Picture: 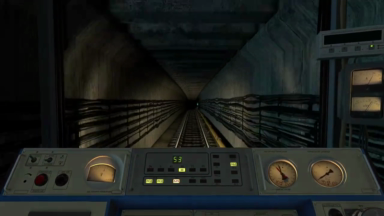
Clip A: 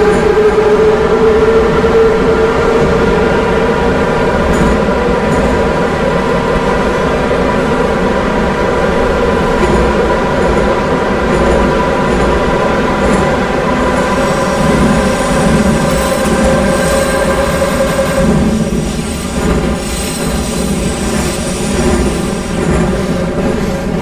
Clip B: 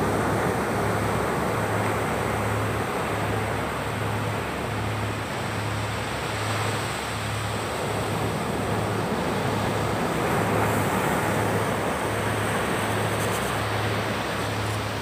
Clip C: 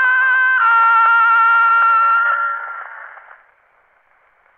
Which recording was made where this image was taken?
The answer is A